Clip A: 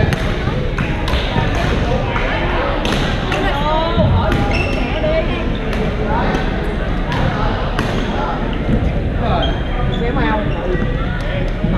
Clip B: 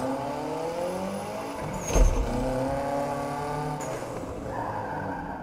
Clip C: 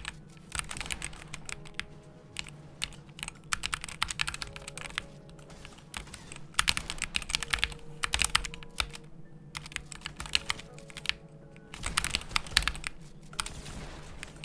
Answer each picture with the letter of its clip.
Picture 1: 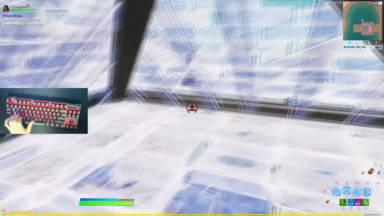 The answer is C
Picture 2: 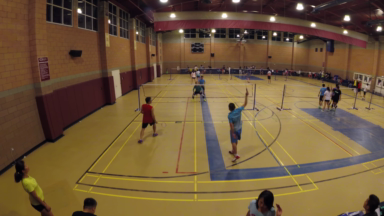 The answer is A